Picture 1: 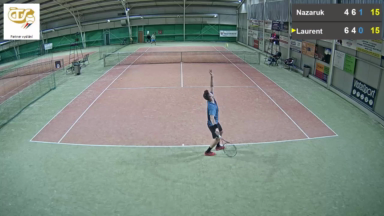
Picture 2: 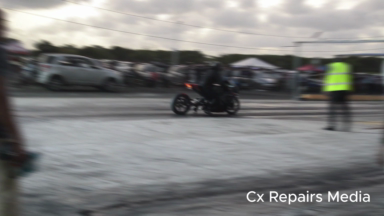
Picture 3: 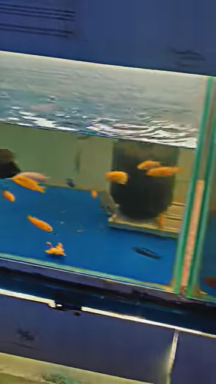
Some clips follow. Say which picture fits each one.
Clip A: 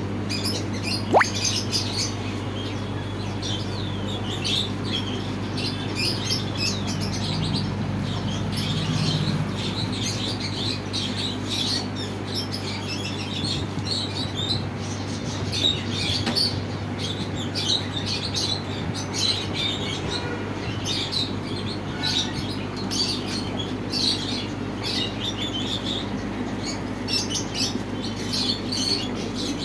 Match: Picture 3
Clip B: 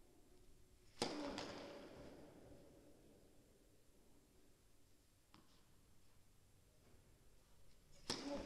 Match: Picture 1